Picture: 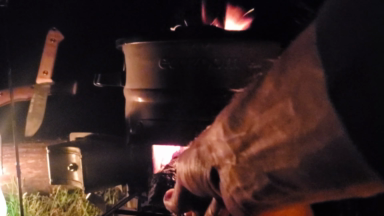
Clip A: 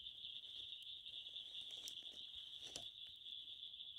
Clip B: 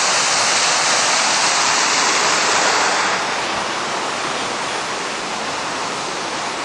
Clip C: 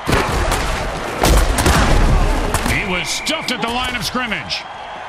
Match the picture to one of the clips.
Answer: A